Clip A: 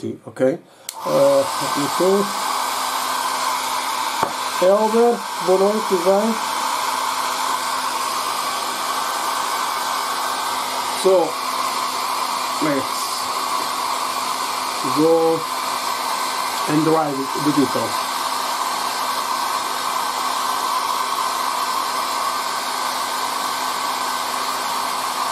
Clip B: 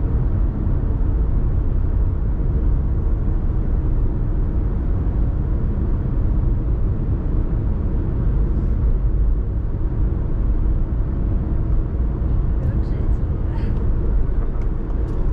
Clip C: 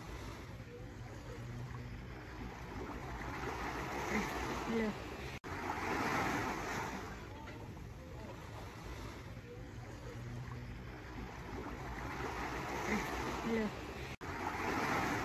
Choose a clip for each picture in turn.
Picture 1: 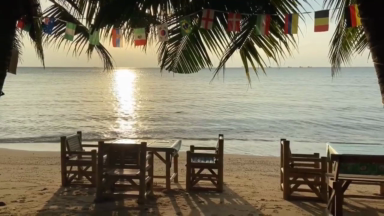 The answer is C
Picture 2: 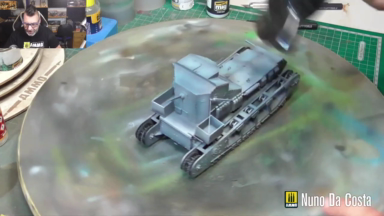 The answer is A